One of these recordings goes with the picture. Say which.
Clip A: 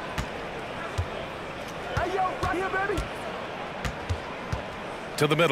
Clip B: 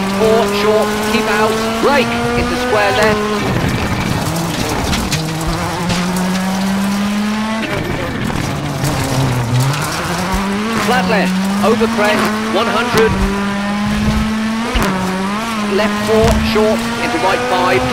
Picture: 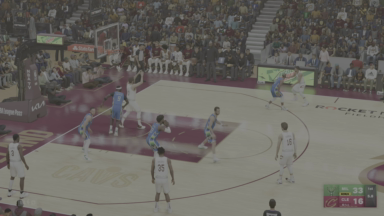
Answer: A